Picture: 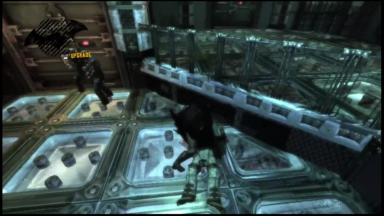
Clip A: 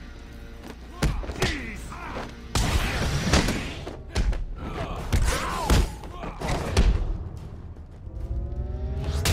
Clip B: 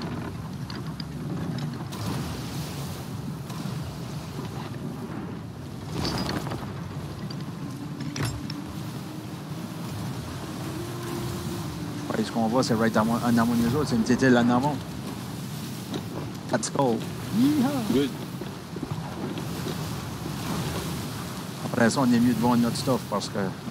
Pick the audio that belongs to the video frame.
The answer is A